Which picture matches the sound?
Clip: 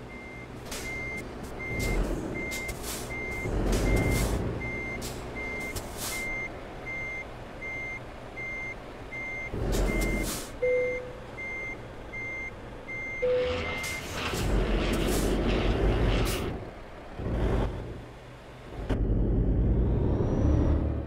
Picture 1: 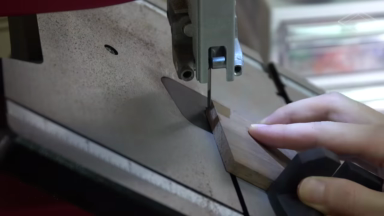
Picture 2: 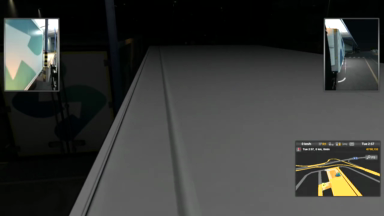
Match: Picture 2